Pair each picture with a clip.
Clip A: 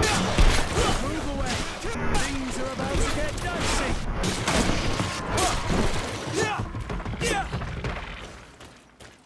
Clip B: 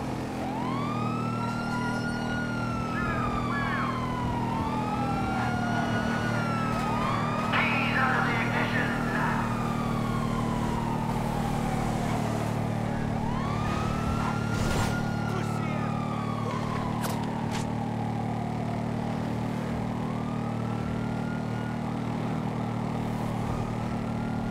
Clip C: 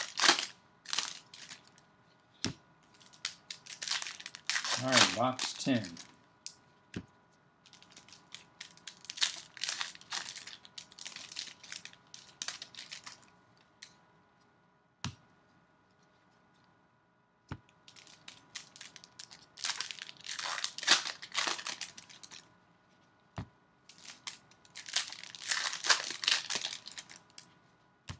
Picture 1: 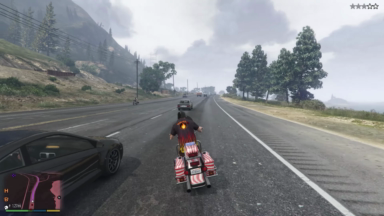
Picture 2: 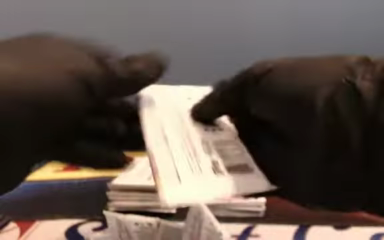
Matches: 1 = B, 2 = C